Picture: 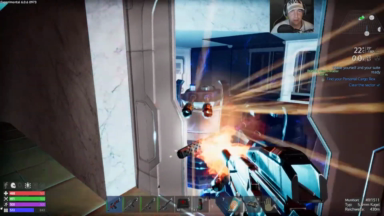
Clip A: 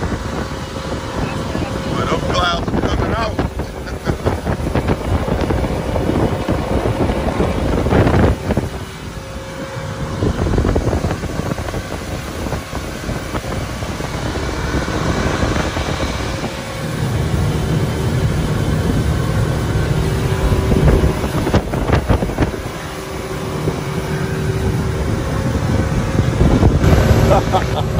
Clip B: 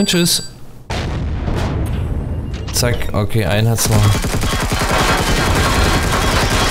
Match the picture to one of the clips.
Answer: B